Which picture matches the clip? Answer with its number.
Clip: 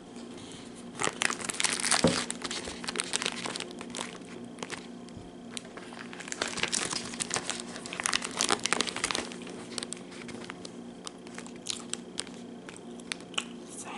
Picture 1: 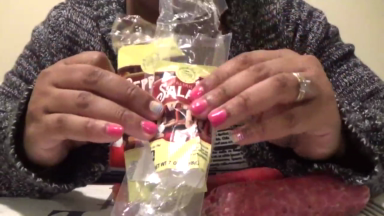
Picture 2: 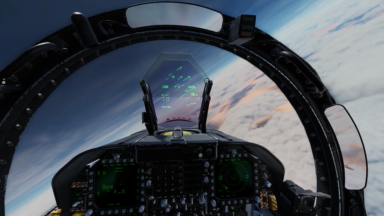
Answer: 1